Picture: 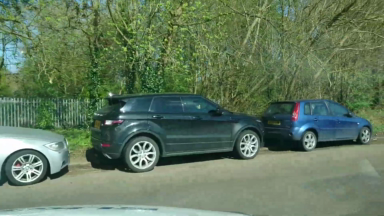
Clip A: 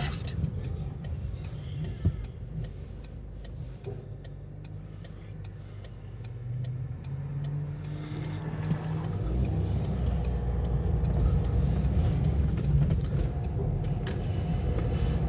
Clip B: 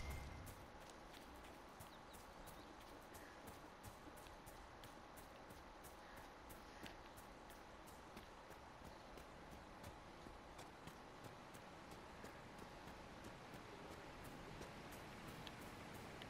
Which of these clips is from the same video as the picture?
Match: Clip A